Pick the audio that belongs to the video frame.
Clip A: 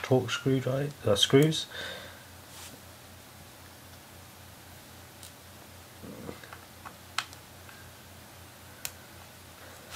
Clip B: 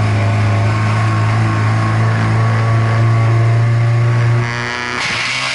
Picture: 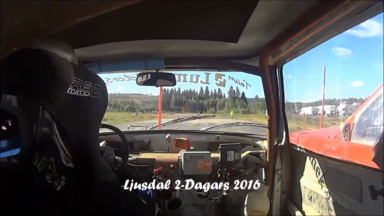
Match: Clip B